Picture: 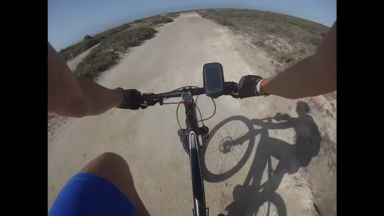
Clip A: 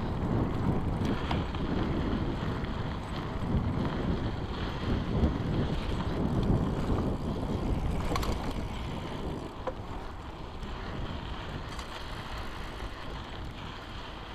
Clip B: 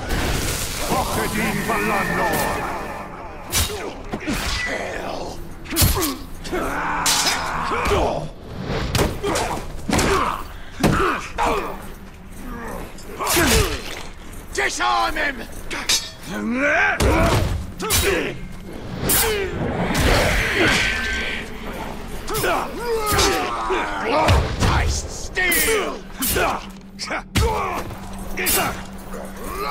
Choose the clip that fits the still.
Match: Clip A